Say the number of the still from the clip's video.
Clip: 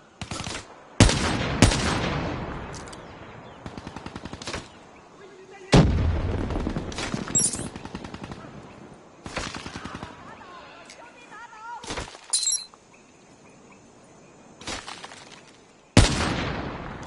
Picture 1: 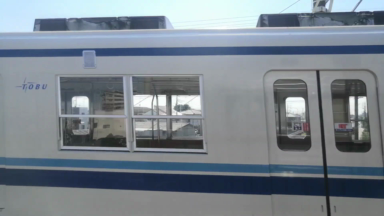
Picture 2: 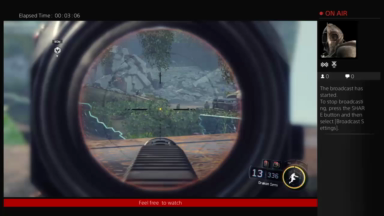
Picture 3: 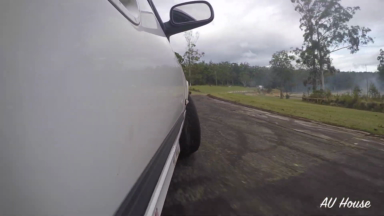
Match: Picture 2